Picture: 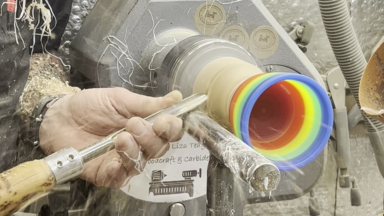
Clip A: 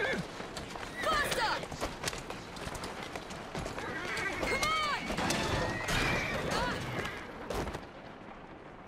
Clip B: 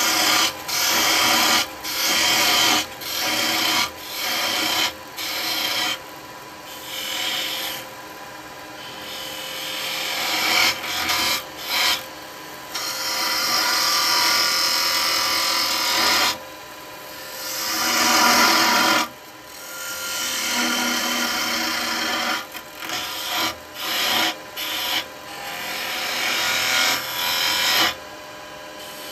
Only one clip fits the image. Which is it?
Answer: B